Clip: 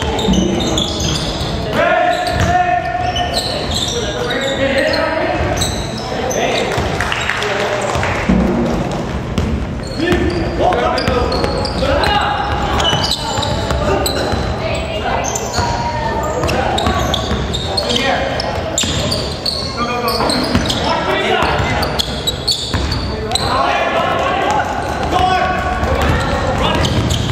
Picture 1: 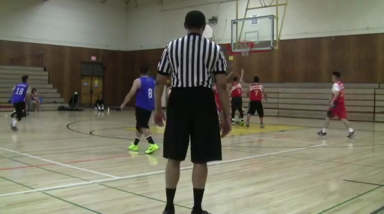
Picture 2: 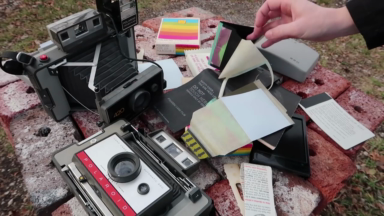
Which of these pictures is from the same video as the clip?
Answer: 1